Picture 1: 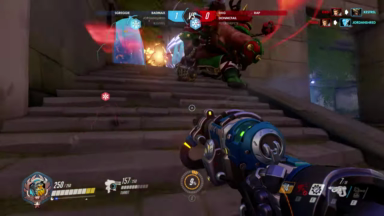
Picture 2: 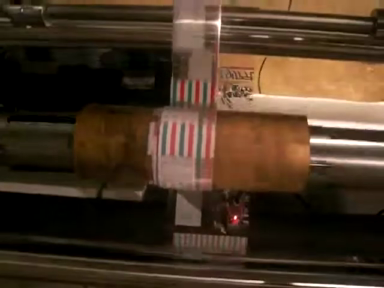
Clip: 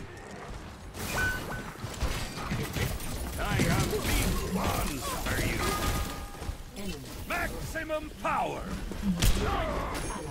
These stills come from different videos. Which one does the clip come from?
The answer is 1